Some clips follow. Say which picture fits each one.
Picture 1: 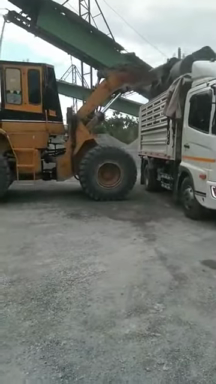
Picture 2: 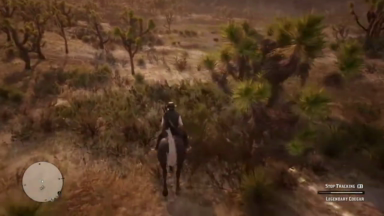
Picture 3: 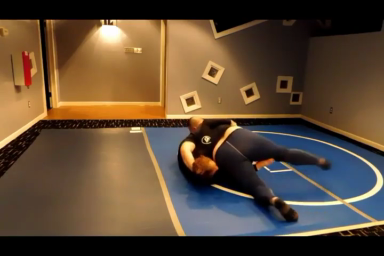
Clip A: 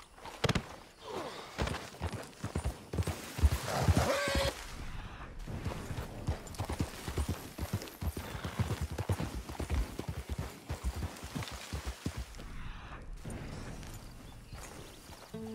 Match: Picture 2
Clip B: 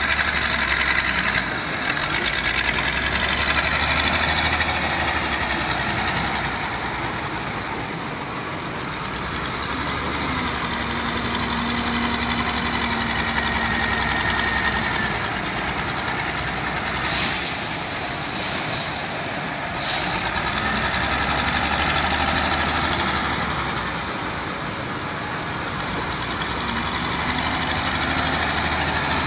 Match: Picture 1